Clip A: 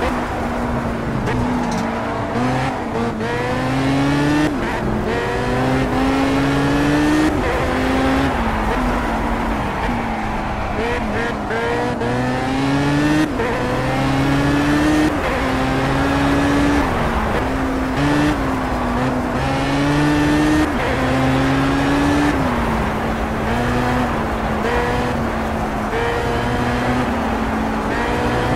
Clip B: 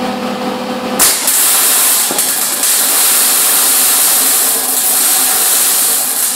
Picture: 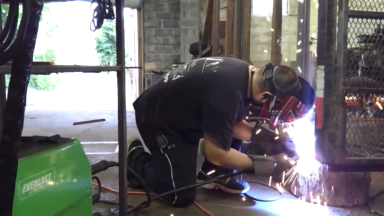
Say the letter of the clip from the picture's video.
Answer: B